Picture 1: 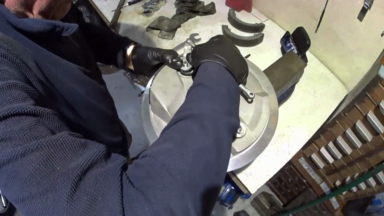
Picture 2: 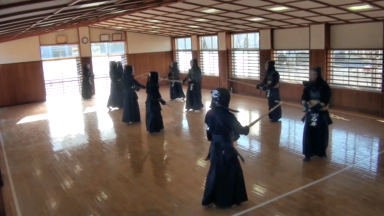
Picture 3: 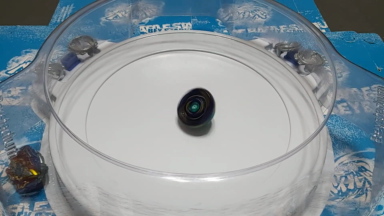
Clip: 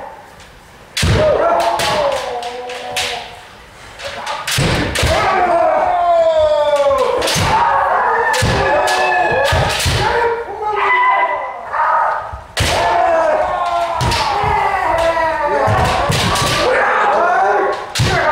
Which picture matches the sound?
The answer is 2